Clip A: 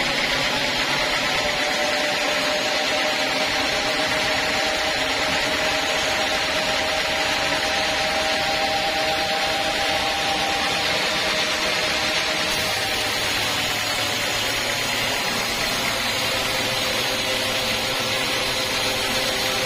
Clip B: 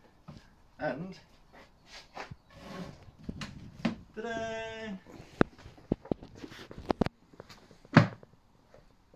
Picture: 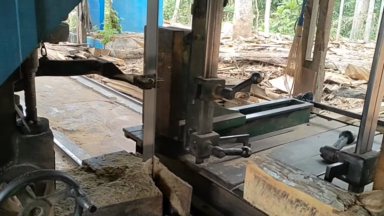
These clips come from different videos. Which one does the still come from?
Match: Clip A